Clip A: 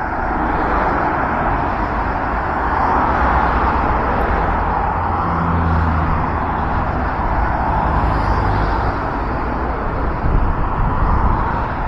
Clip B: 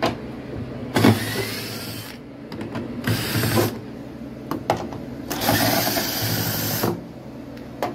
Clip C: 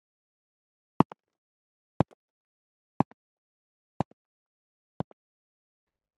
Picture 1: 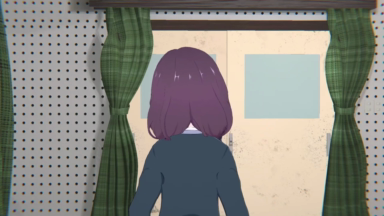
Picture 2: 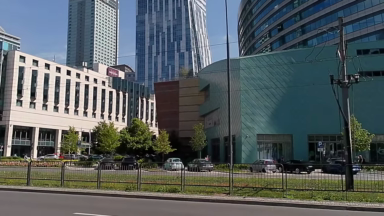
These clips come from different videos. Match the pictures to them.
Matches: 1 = C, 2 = A